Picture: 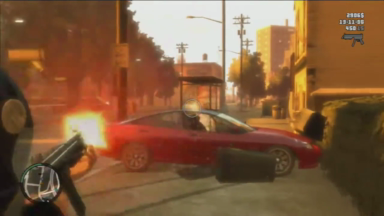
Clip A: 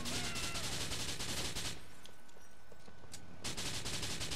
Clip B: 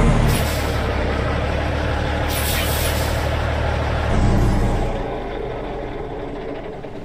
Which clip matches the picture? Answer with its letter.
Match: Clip A